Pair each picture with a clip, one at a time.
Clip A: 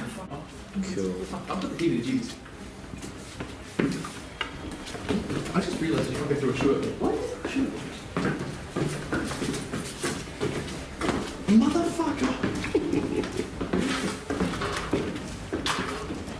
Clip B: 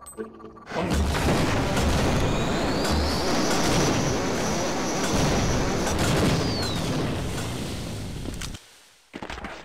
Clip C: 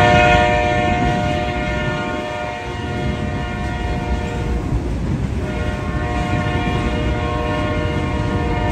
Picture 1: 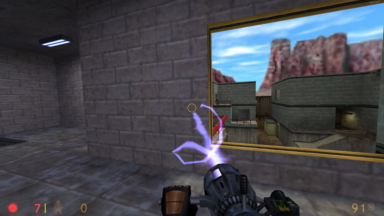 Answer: B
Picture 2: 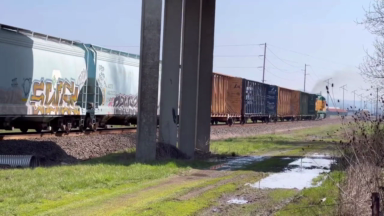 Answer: C